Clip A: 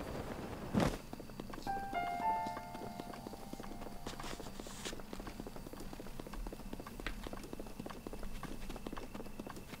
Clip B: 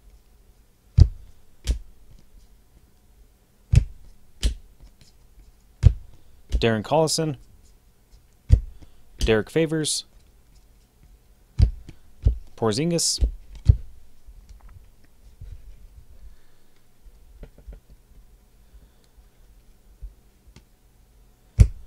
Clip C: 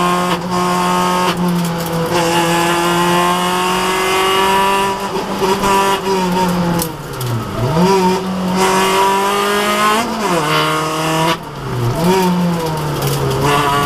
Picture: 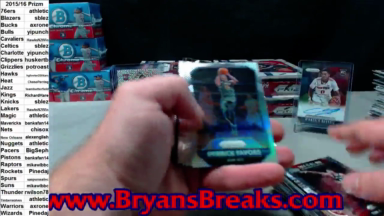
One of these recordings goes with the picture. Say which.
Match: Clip B